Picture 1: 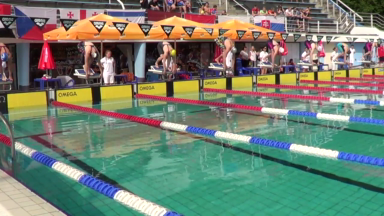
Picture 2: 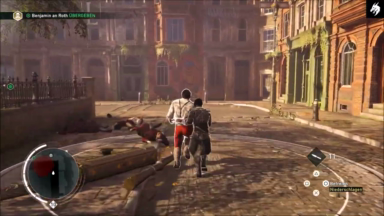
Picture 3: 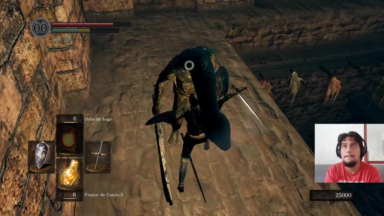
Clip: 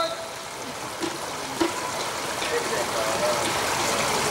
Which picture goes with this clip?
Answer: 1